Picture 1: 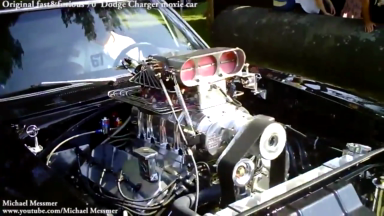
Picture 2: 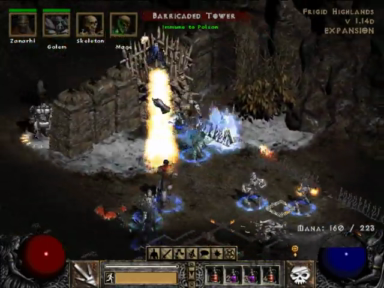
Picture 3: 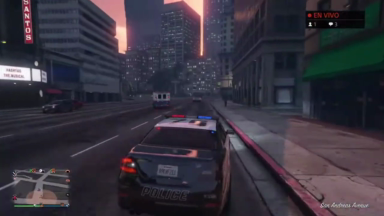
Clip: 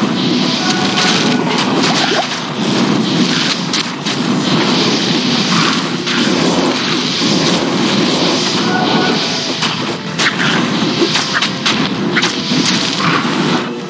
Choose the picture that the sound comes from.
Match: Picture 2